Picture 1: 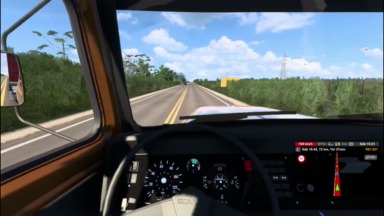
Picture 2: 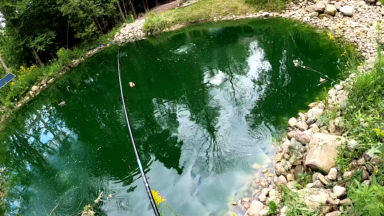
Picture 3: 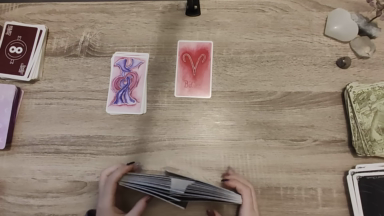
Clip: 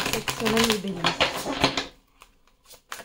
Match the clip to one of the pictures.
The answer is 3